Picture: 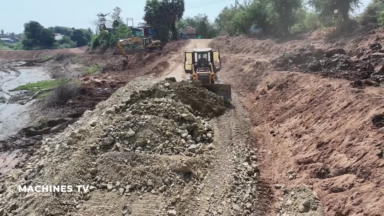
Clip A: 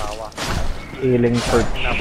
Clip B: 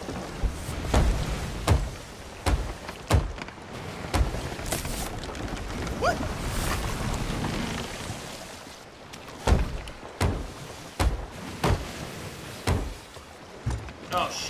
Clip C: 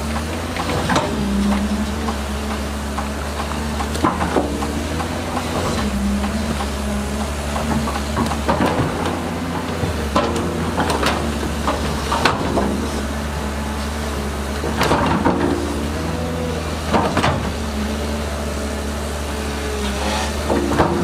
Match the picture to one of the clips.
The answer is C